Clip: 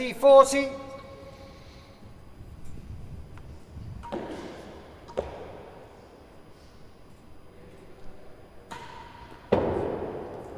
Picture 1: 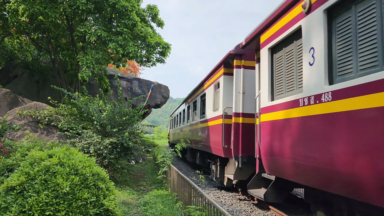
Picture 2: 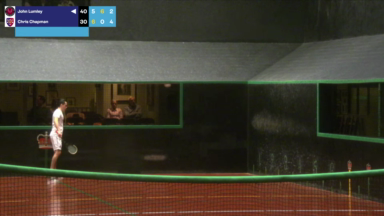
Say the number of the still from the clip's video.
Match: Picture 2